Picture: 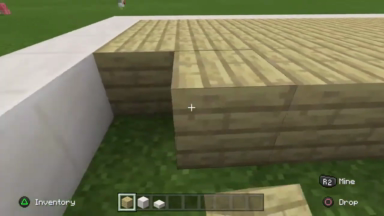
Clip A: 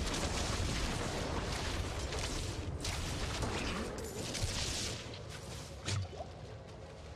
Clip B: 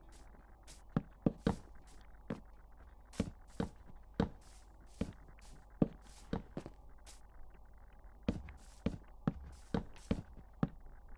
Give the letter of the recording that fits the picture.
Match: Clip B